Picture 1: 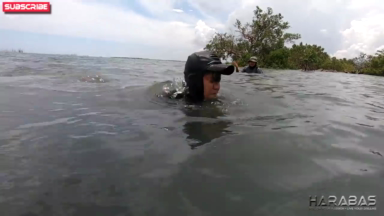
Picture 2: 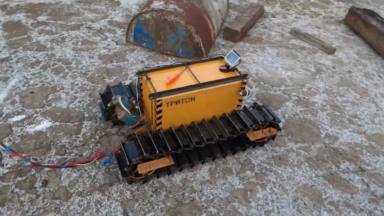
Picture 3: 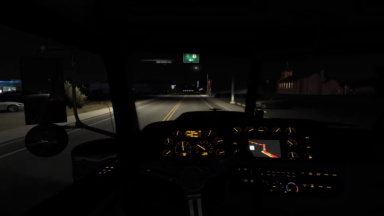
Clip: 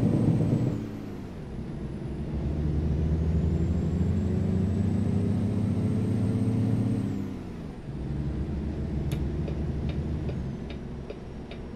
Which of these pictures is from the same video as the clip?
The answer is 3